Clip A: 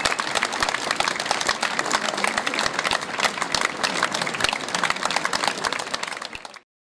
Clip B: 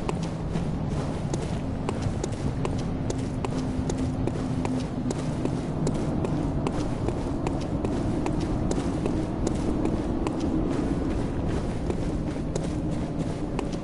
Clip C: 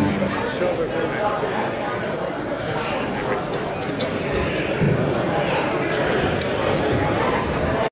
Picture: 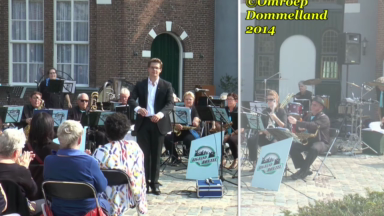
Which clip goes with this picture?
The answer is A